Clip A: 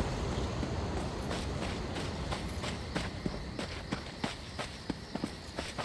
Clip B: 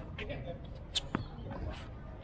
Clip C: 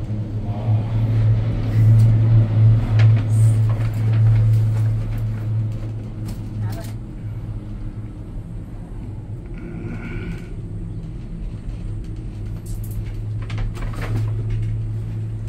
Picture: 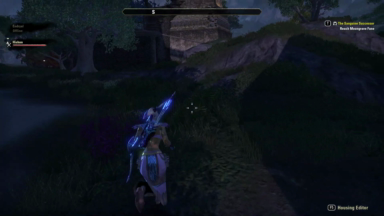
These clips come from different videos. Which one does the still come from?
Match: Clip A